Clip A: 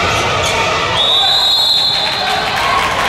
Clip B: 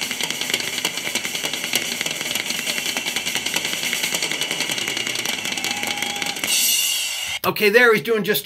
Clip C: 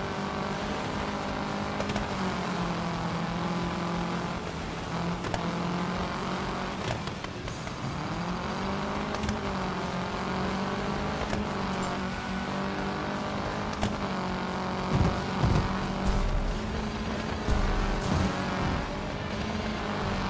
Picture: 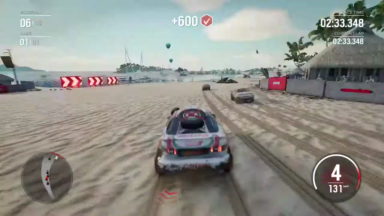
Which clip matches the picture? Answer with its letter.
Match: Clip C